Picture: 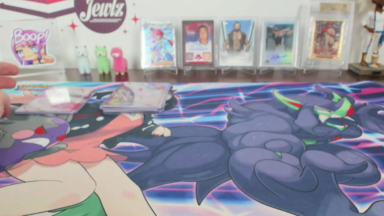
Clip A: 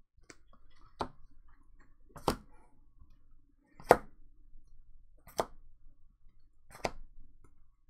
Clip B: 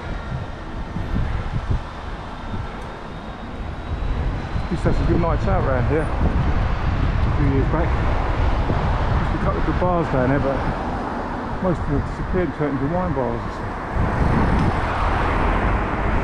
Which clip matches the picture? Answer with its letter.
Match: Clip A